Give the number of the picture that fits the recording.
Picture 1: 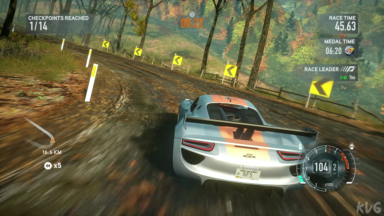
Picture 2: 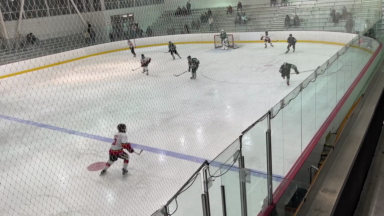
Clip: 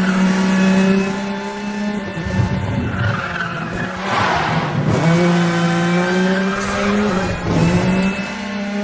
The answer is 1